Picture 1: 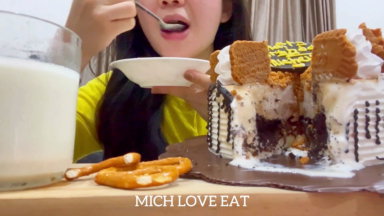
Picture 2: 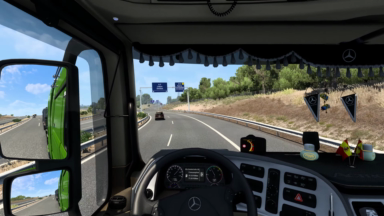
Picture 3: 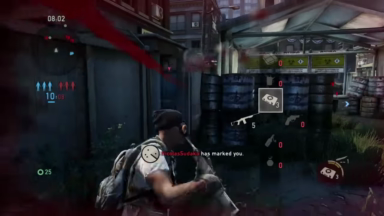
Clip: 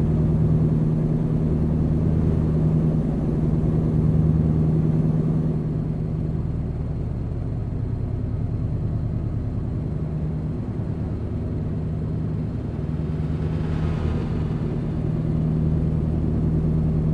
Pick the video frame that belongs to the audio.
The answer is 2